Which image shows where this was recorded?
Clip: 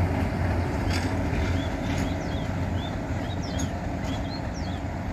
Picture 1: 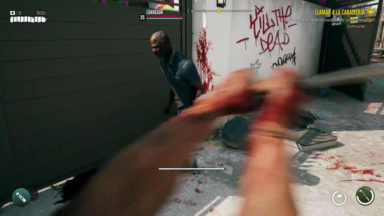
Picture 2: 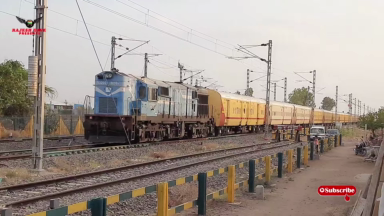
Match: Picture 2